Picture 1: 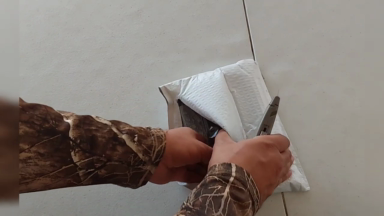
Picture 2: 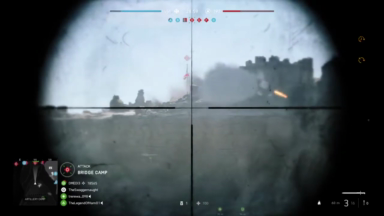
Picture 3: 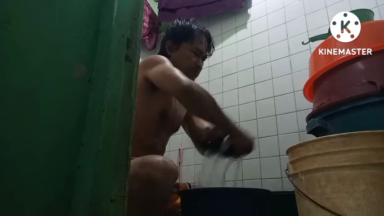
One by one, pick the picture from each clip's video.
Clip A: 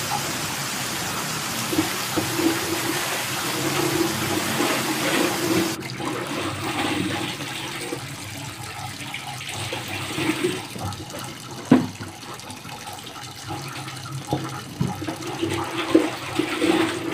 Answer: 3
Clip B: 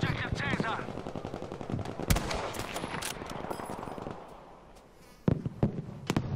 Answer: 2